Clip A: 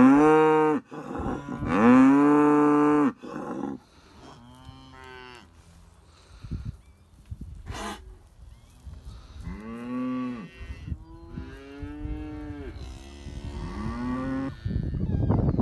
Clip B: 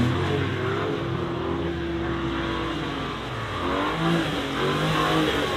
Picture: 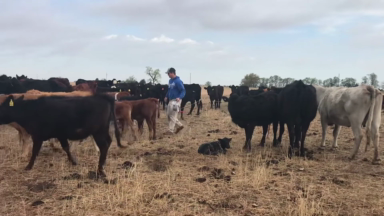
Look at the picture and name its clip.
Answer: A